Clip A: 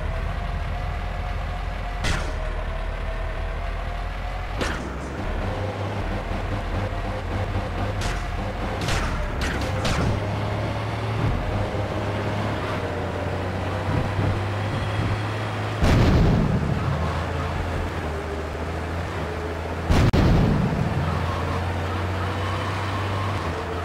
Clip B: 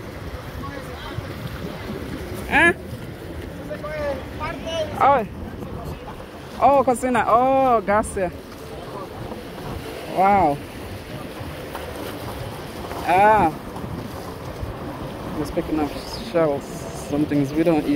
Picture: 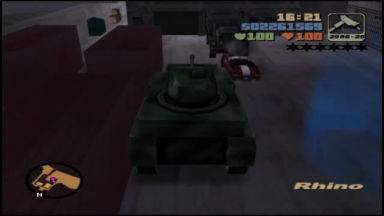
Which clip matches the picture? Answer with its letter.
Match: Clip A